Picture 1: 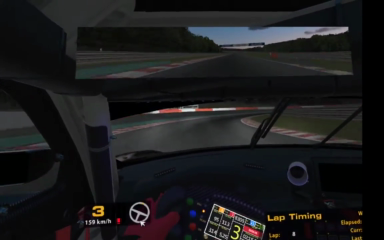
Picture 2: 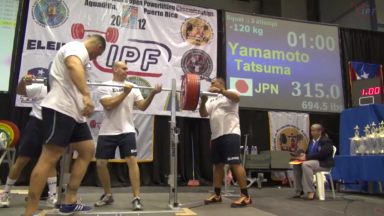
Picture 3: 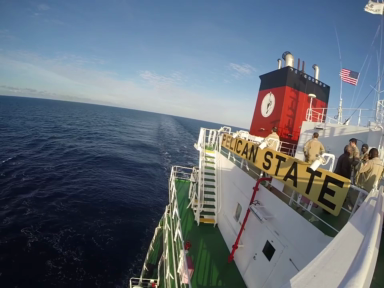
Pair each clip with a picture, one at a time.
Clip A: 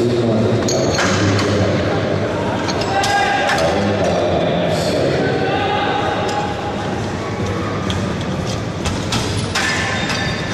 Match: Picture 2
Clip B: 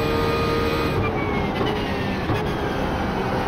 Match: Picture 1